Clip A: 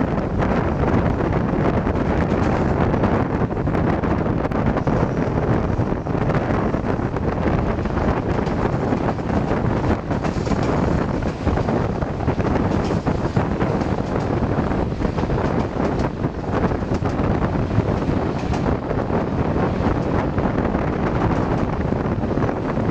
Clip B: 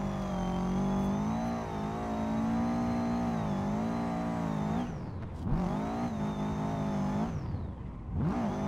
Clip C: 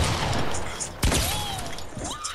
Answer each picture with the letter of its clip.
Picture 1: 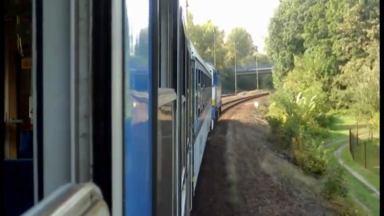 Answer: A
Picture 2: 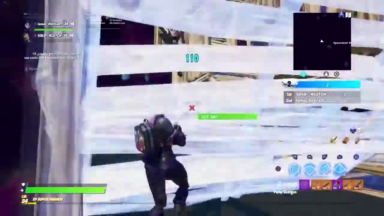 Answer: C